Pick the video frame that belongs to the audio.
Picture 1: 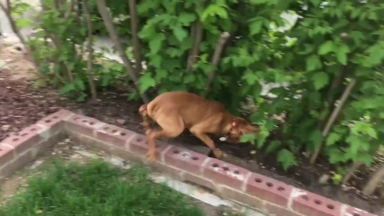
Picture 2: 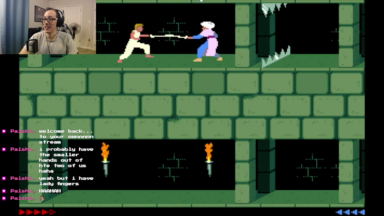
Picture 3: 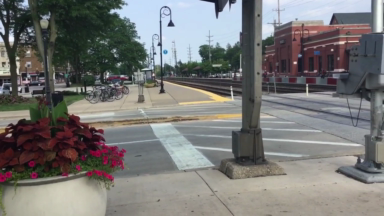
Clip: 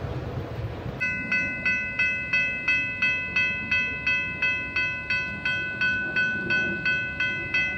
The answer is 3